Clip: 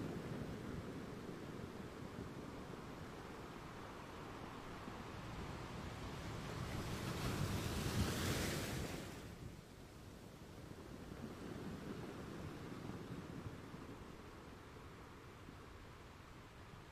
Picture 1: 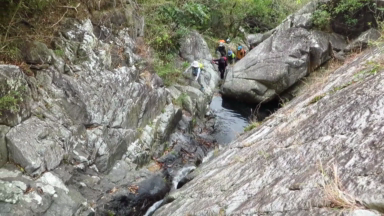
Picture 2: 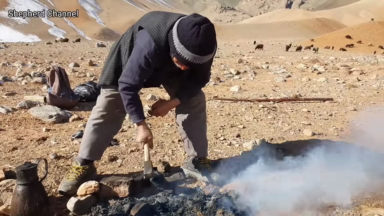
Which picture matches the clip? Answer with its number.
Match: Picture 2